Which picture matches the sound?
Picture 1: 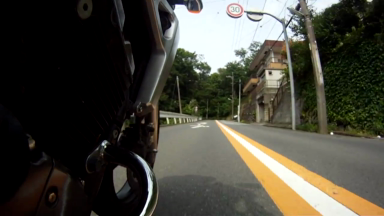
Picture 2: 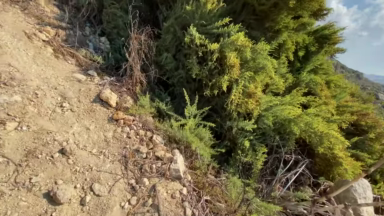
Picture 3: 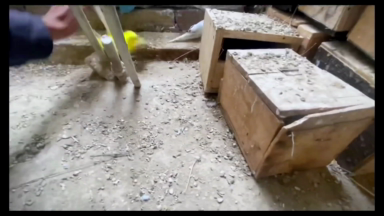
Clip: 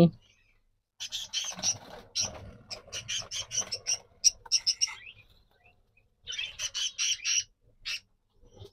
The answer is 3